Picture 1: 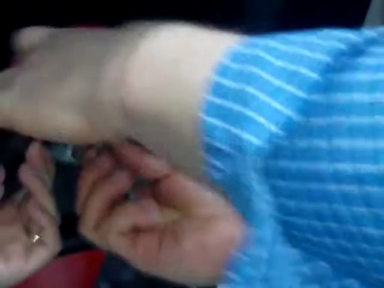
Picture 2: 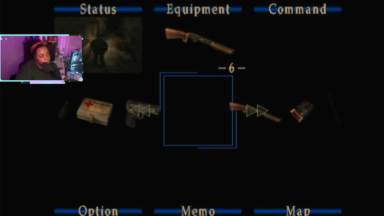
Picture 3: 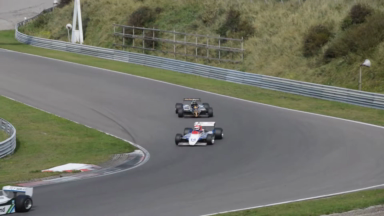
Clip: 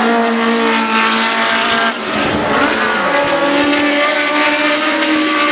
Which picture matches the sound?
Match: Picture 3